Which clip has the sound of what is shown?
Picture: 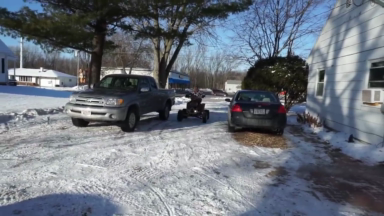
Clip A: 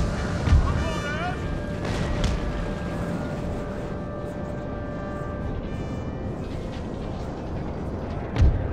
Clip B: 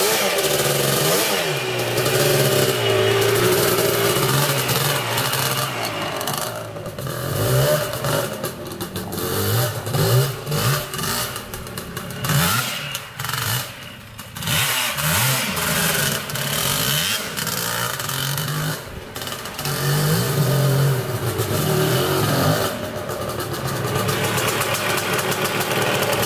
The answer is B